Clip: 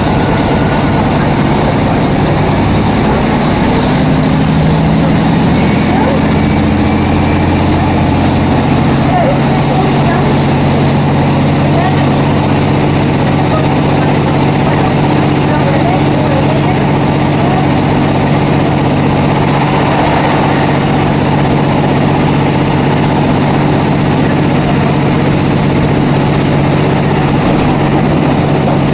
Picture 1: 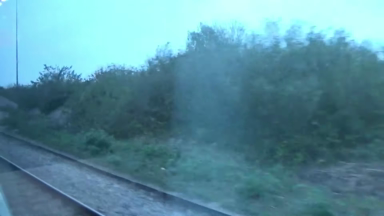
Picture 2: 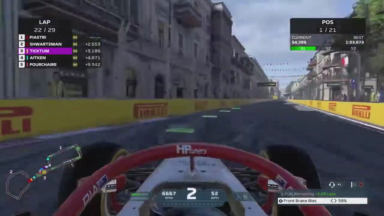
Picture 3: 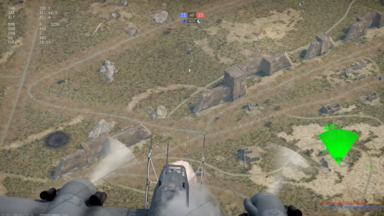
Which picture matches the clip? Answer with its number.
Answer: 1